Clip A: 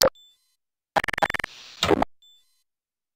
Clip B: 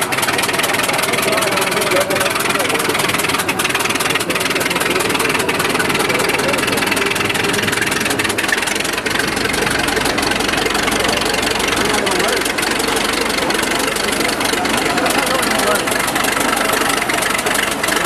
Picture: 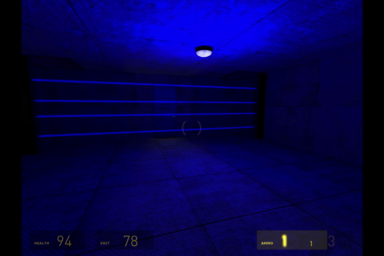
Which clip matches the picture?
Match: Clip A